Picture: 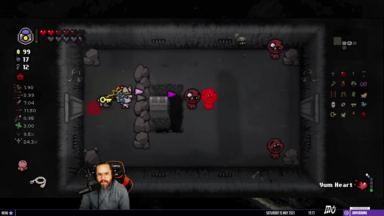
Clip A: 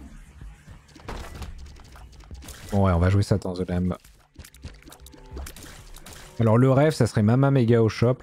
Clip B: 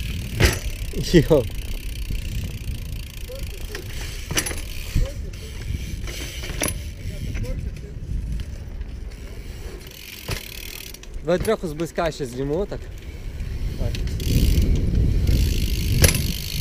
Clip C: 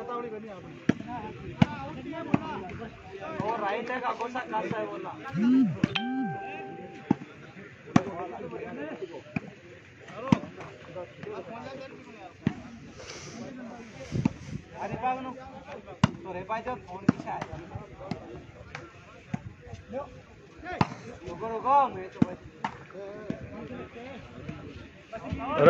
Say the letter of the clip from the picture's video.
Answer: A